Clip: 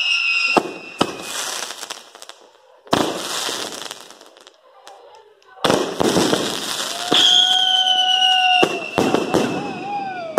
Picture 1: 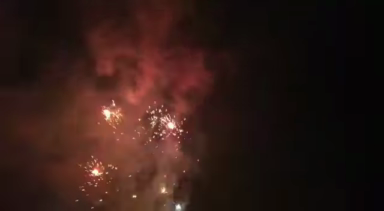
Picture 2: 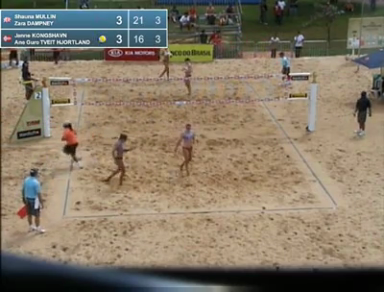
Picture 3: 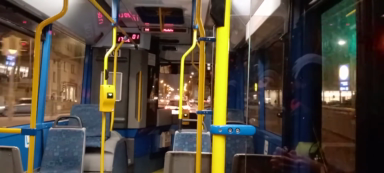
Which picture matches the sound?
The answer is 1